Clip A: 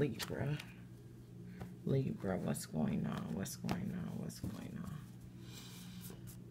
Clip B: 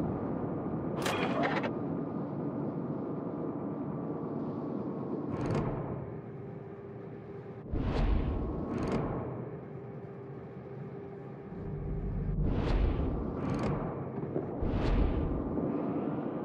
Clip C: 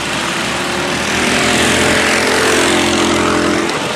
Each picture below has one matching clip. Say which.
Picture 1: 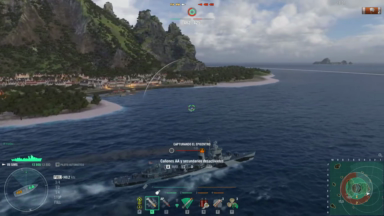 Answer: B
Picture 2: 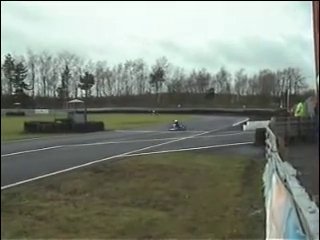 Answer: C